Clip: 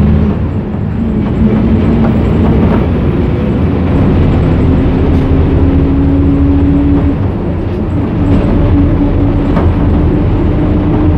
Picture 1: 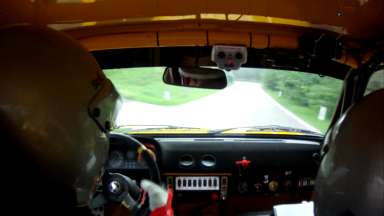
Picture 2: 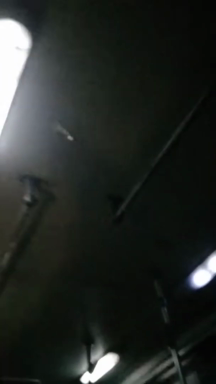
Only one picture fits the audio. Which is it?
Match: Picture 2